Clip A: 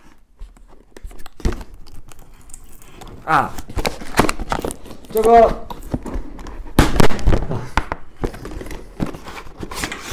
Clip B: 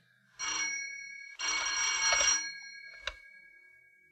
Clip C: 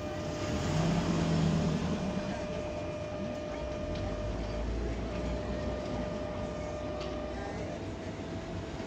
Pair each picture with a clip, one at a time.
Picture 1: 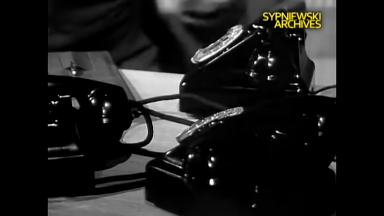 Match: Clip B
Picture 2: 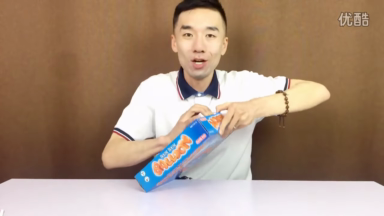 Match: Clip A